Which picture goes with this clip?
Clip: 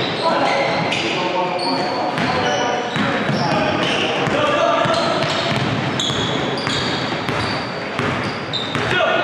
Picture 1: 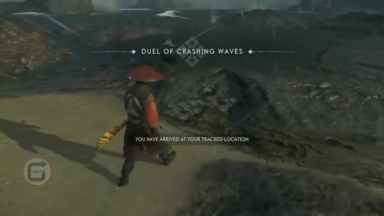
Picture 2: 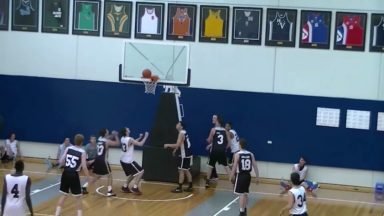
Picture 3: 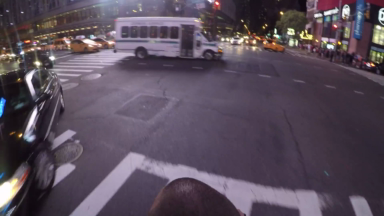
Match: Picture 2